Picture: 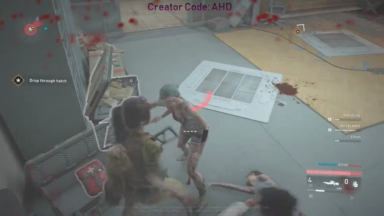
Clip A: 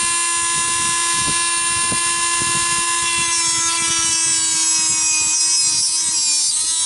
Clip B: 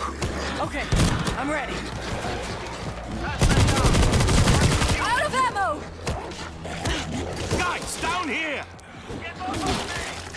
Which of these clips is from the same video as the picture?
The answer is B